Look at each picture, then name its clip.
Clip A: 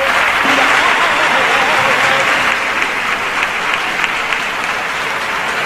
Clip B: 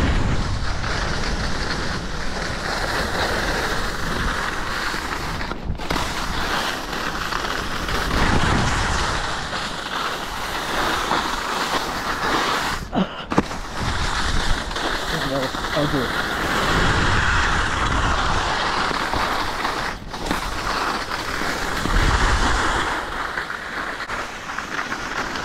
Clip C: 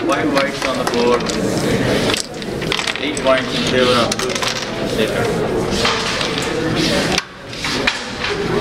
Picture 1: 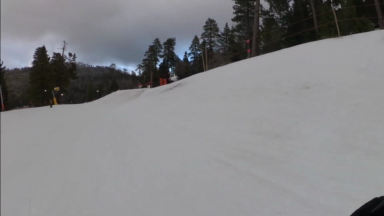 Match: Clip B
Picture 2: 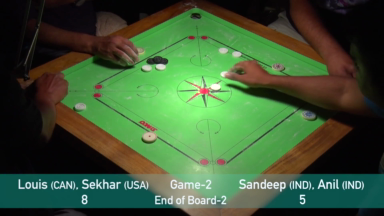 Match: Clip C